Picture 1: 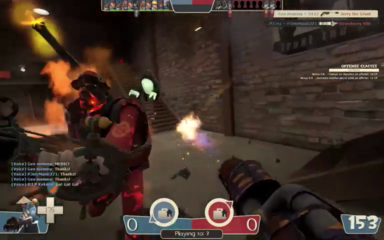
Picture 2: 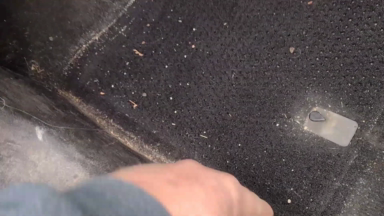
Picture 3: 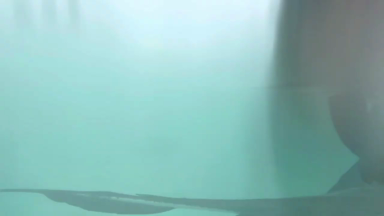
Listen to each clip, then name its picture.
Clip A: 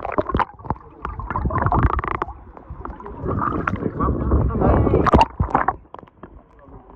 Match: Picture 3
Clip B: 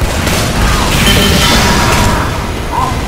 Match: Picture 1